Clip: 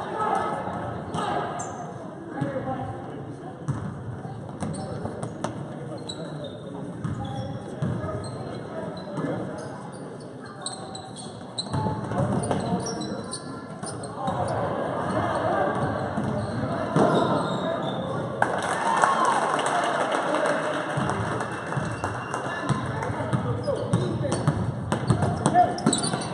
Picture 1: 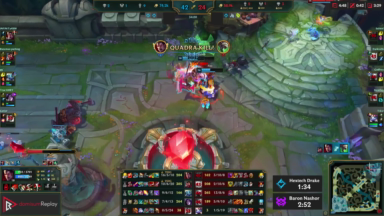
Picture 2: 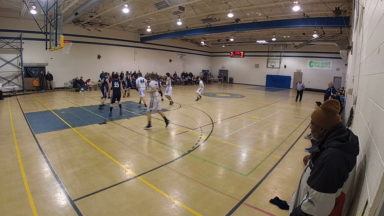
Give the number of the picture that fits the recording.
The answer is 2